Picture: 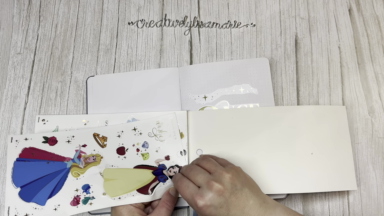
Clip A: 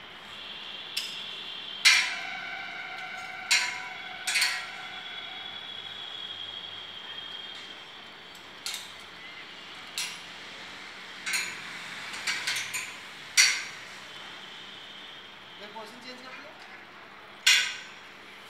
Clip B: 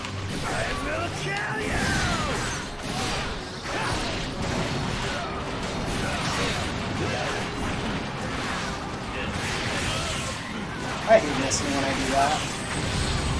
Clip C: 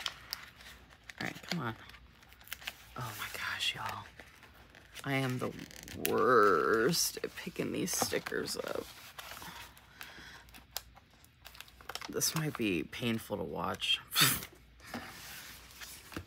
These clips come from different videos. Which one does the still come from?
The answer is C